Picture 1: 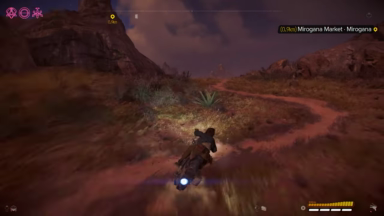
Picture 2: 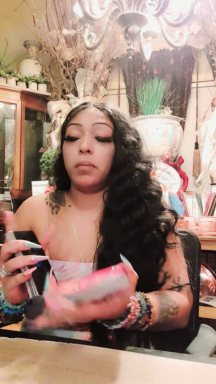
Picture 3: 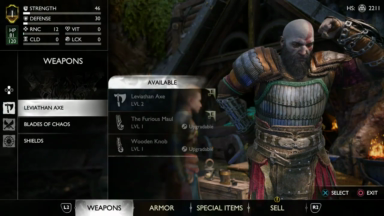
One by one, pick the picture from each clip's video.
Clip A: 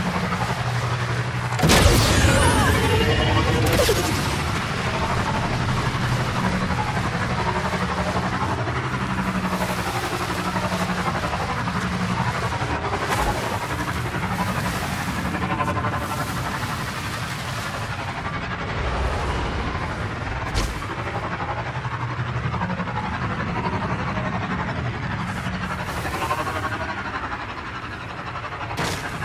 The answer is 1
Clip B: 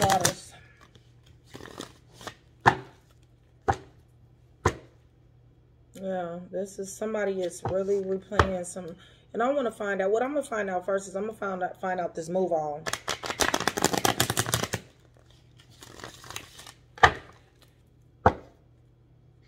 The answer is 2